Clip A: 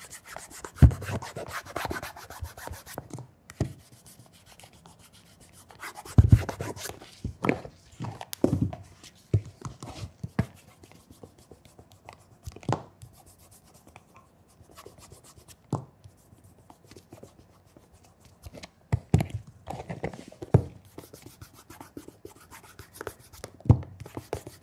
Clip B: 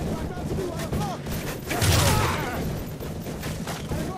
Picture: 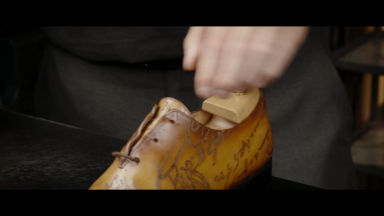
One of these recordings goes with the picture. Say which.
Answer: A